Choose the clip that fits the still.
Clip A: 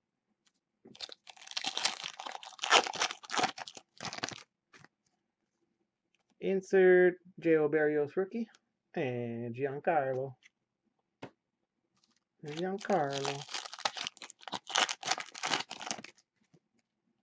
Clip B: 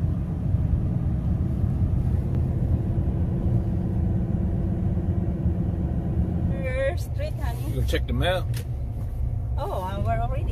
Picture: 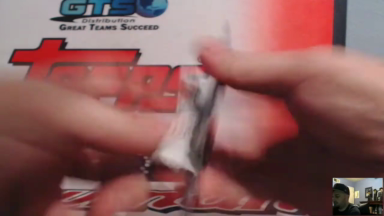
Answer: A